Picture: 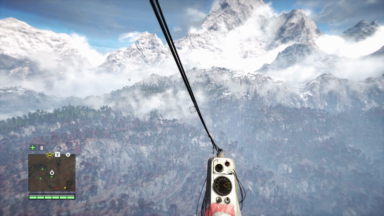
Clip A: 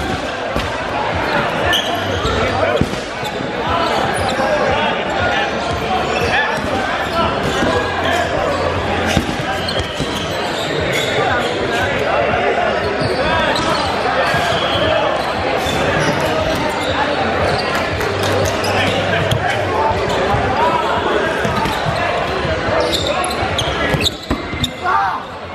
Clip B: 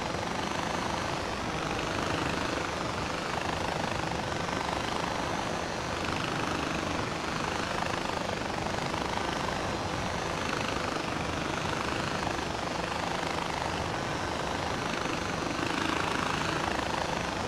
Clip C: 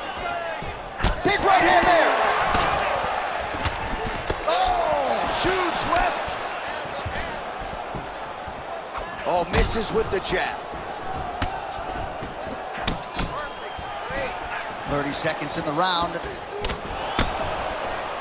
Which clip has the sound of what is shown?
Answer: B